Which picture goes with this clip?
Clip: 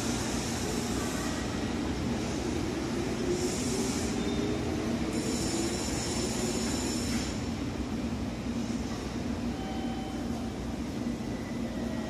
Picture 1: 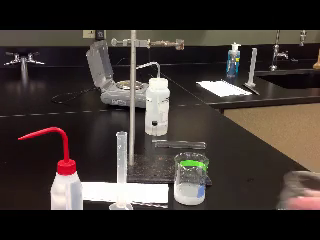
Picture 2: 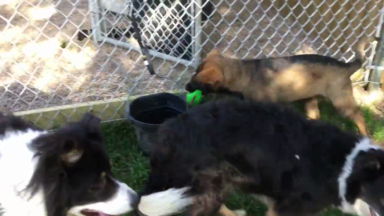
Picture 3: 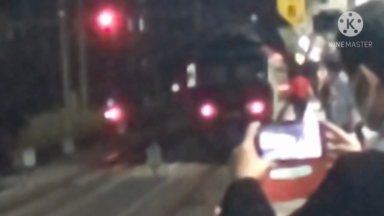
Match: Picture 3